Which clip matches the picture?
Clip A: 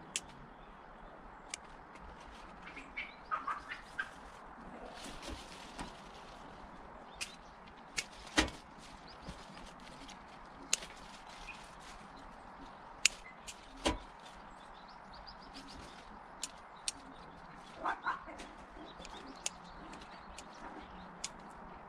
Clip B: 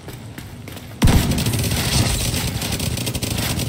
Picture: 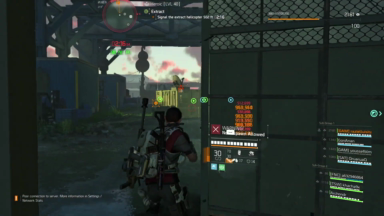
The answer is B